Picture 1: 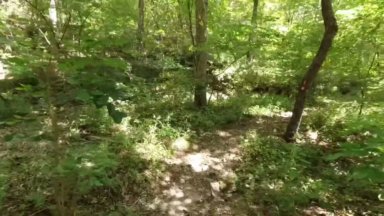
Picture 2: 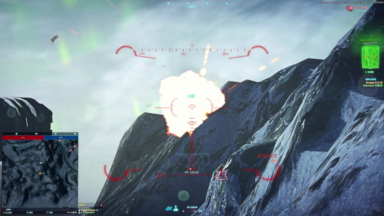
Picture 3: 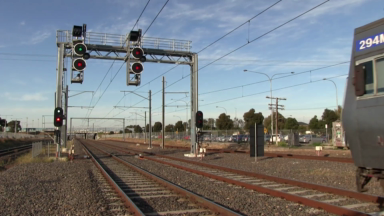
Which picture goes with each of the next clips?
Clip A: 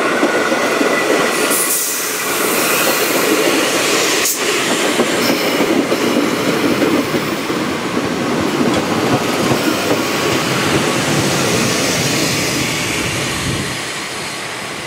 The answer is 3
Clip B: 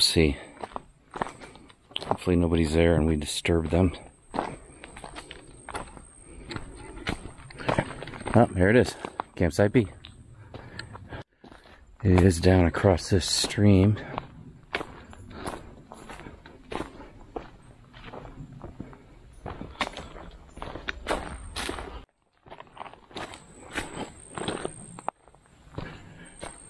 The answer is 1